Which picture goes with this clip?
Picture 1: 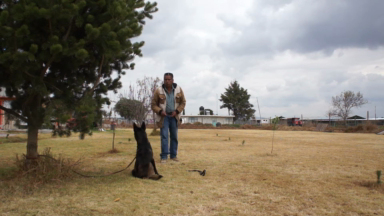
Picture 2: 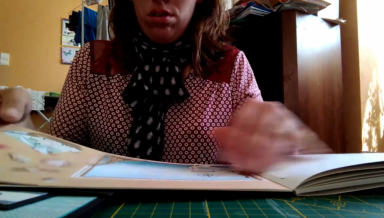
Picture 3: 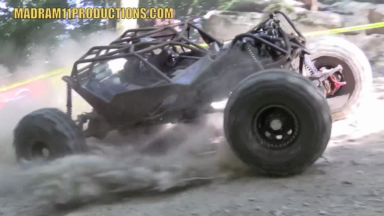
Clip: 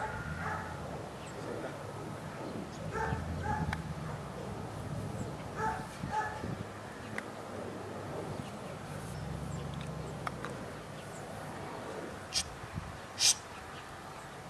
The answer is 1